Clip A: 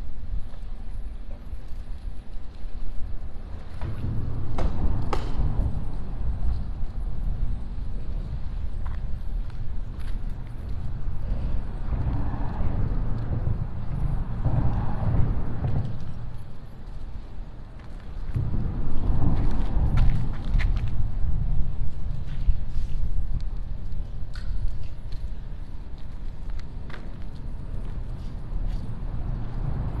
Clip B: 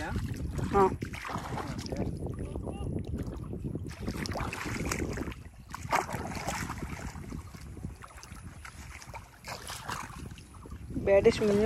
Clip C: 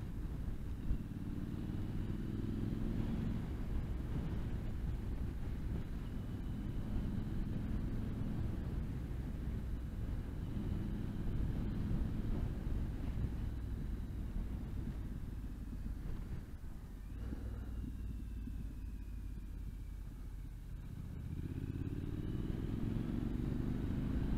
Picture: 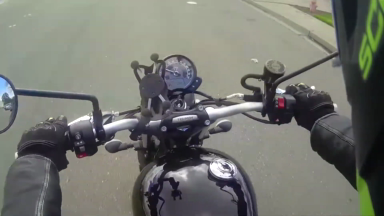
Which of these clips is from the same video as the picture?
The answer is C